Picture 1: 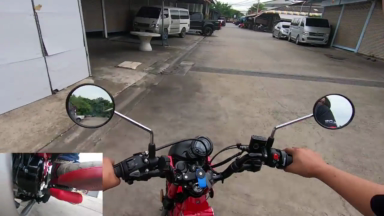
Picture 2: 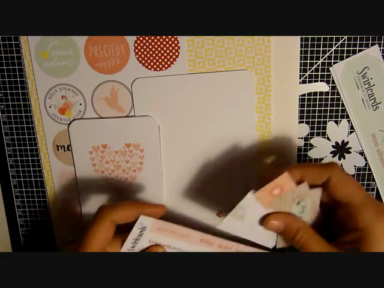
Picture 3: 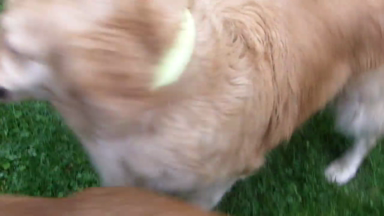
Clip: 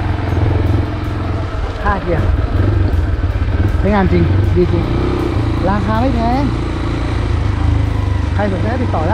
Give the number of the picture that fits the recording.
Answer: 1